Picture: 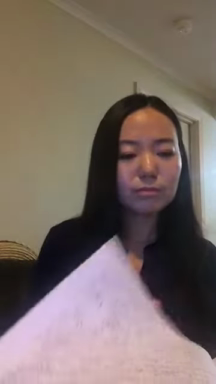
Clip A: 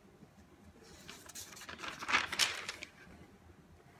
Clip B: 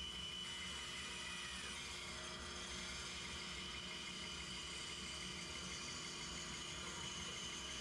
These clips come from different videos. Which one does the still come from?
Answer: A